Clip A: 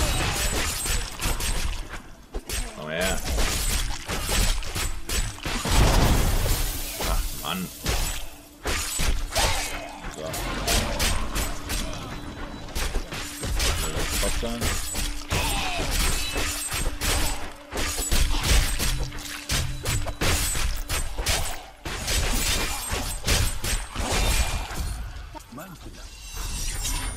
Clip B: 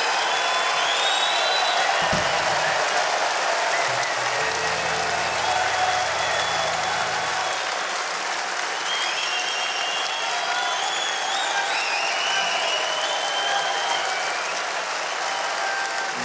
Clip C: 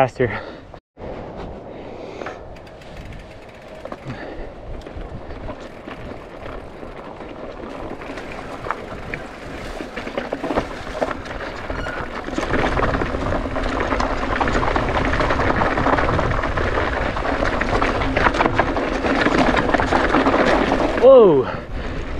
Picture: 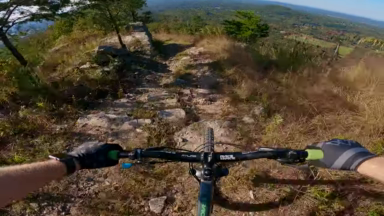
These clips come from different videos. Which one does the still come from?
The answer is C